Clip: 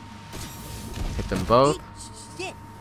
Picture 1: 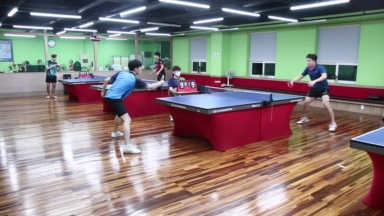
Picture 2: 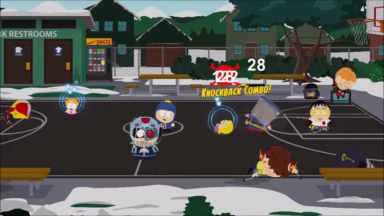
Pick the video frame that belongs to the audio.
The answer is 2